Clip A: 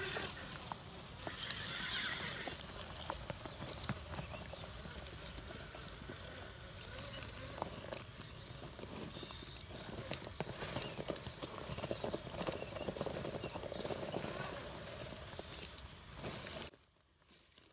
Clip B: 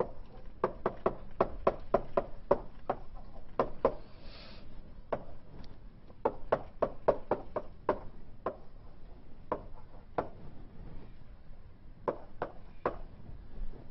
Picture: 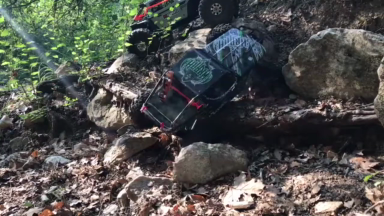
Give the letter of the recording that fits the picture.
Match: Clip A